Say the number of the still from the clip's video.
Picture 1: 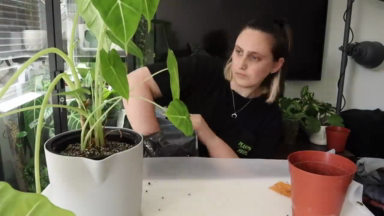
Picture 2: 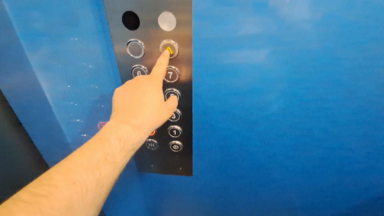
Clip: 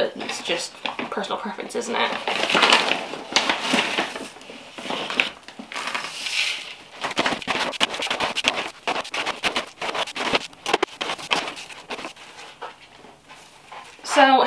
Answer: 1